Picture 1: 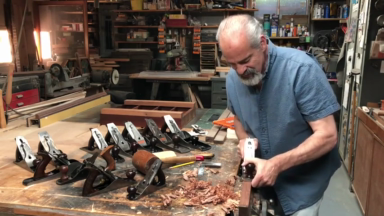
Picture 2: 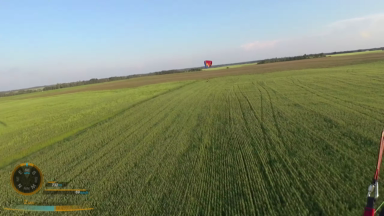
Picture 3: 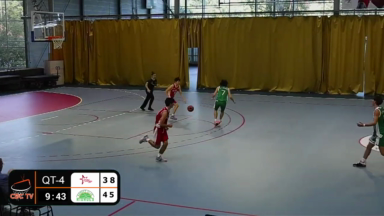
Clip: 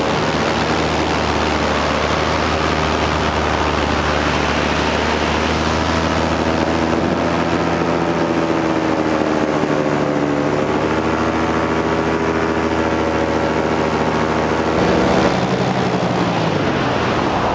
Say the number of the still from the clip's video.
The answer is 2